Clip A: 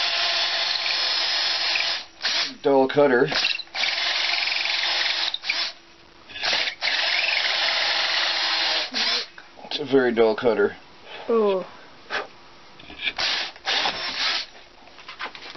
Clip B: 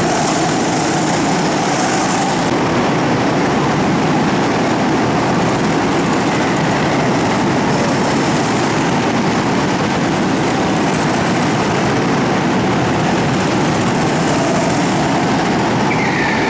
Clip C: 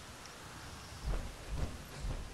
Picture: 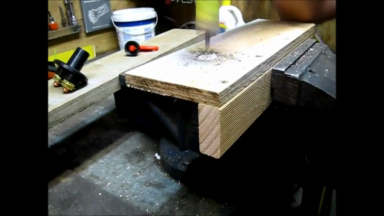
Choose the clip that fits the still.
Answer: A